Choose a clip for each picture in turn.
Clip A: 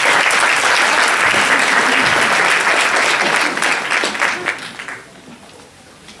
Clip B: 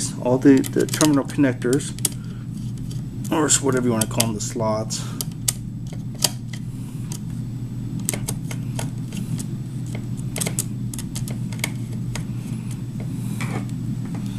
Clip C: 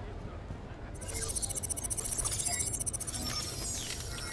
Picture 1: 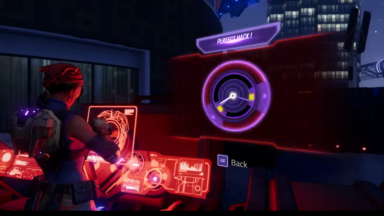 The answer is C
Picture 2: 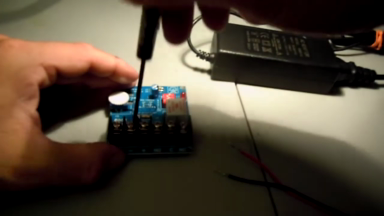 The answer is B